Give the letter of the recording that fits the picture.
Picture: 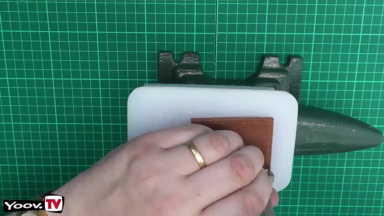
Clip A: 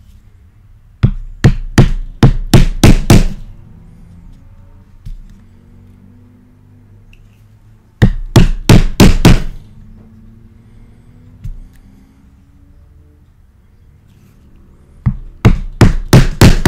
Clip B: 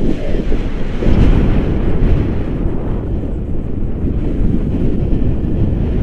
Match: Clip A